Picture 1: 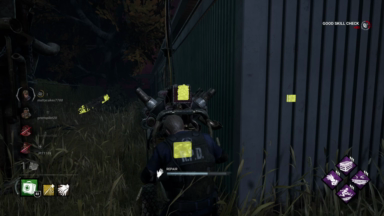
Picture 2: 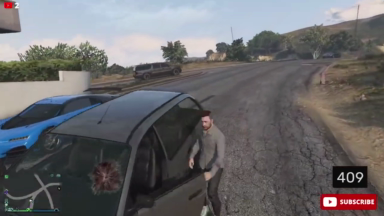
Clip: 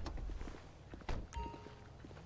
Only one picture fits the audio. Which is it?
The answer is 2